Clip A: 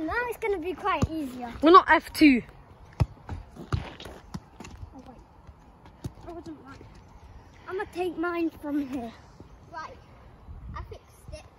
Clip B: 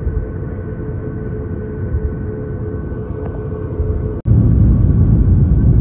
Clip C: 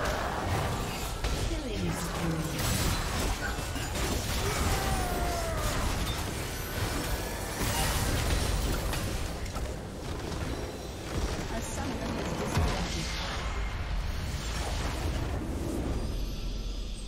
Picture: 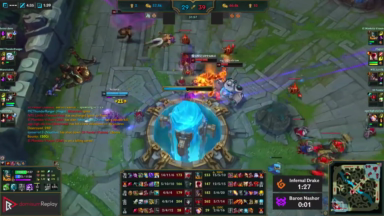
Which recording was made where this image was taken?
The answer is C